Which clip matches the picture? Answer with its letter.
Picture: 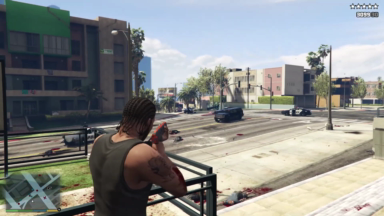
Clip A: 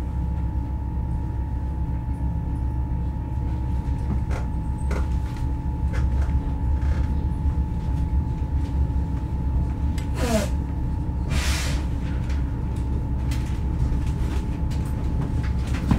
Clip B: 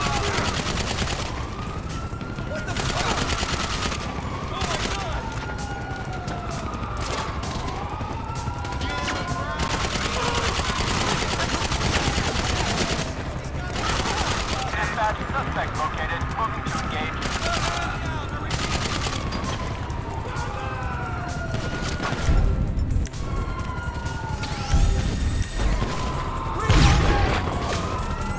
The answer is B